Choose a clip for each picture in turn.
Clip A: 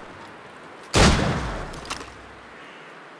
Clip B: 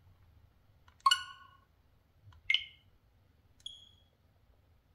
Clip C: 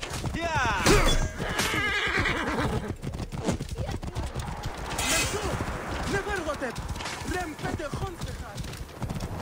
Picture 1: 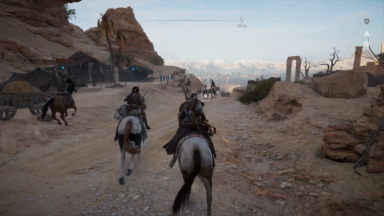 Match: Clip C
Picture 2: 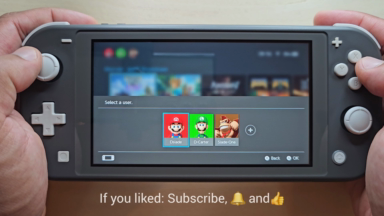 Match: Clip B